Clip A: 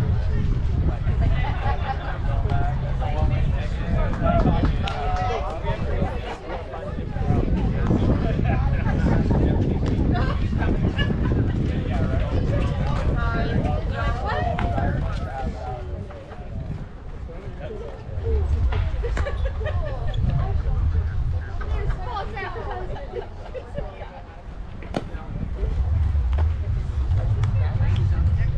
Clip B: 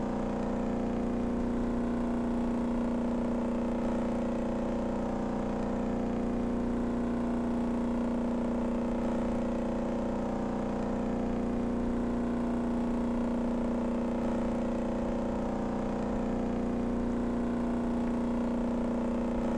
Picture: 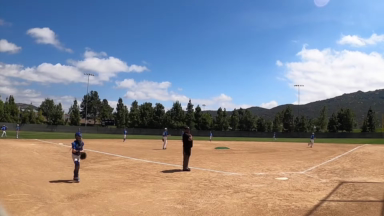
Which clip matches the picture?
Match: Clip A